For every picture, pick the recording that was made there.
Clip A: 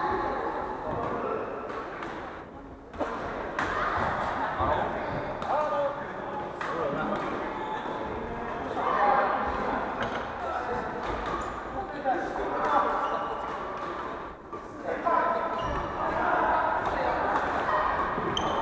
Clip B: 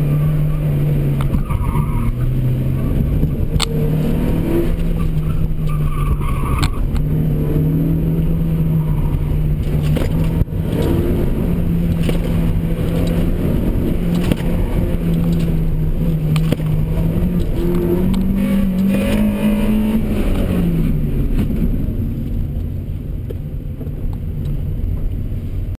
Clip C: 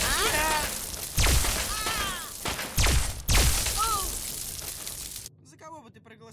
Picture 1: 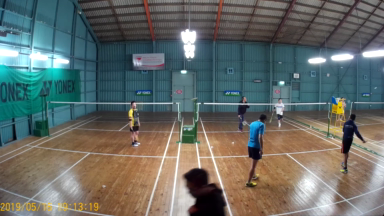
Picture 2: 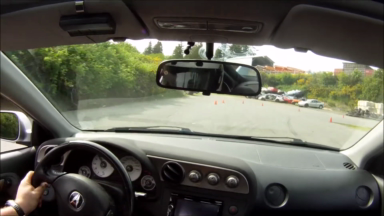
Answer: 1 A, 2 B